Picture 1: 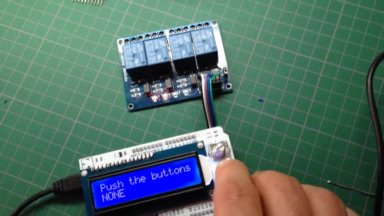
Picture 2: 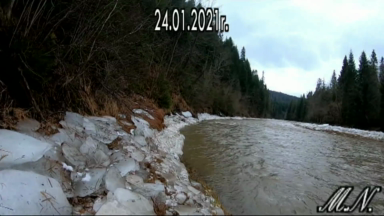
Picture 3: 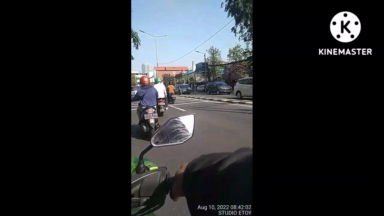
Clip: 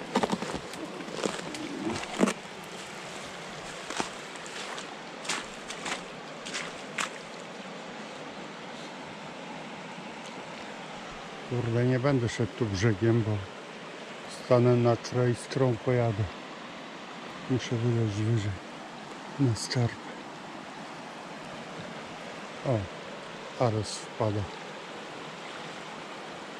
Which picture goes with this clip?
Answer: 2